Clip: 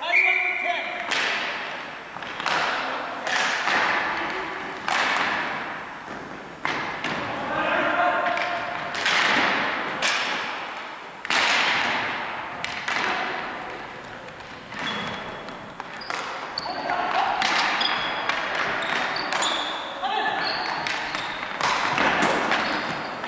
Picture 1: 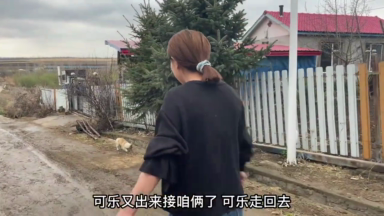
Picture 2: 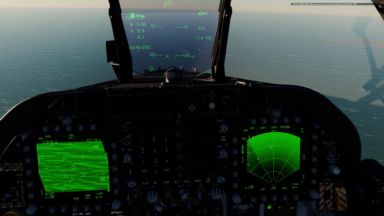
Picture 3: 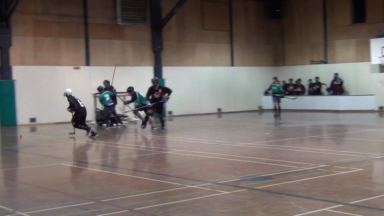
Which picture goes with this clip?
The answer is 3